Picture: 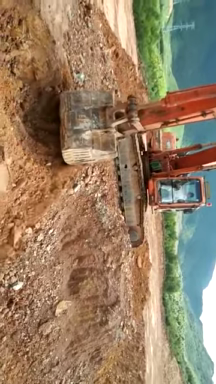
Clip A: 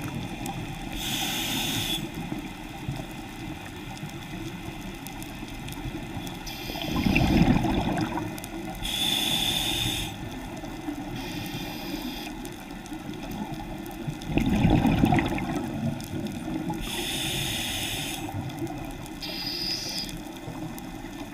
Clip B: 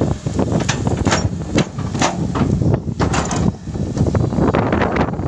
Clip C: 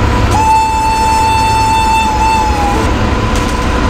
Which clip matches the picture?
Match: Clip B